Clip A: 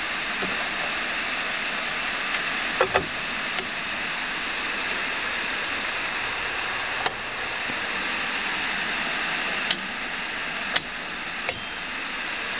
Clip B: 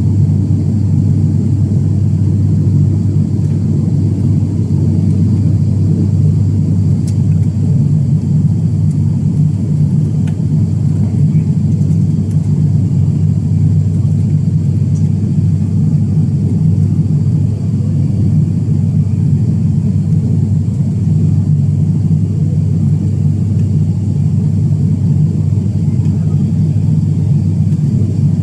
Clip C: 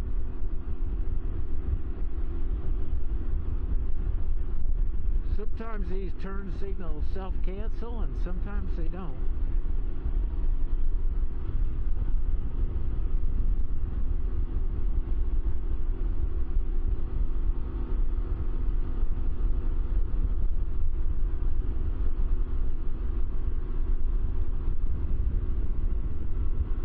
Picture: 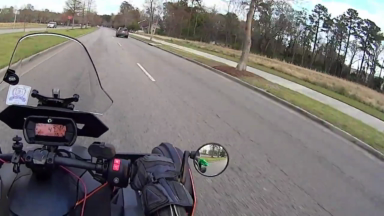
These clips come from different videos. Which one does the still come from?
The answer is C